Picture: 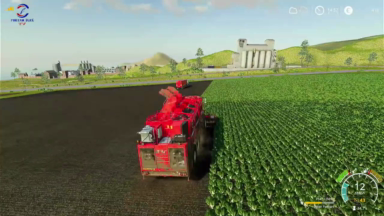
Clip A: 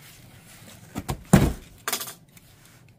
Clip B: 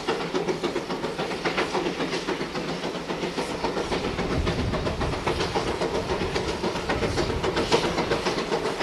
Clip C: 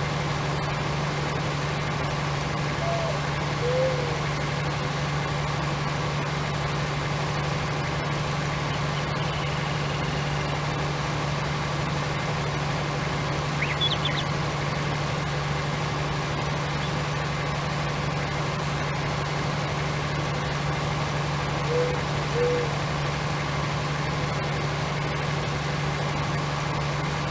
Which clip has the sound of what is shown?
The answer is C